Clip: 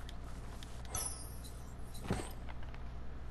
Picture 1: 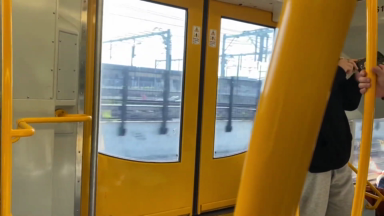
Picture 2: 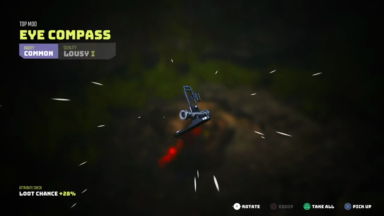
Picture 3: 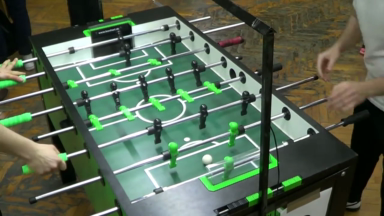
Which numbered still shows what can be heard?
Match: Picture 2